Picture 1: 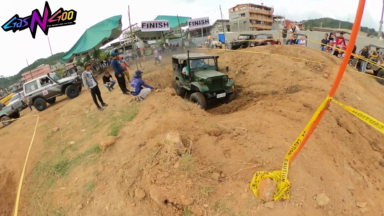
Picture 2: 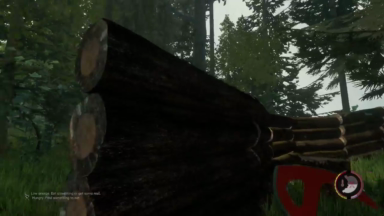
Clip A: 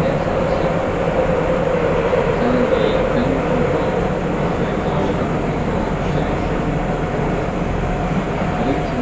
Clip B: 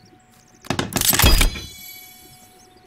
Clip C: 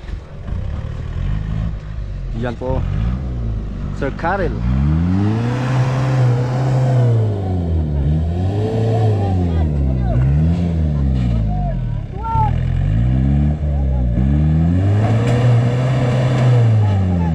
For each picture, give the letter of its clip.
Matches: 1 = C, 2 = B